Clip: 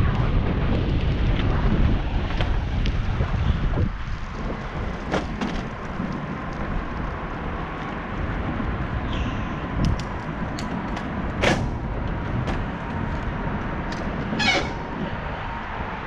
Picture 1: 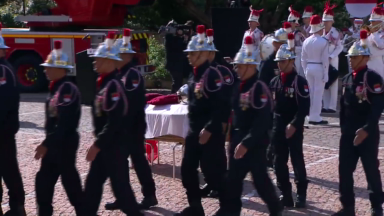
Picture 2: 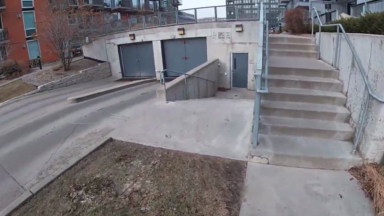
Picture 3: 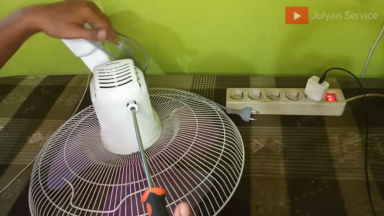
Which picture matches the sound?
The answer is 2